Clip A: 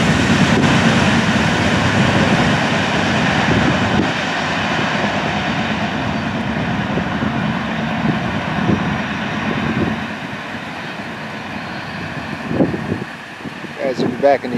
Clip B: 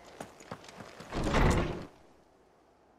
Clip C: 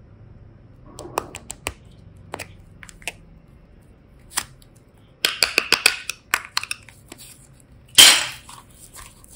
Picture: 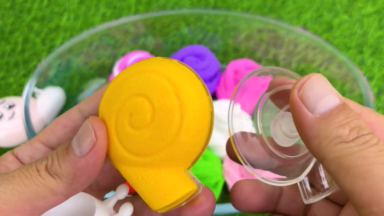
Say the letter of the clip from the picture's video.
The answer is C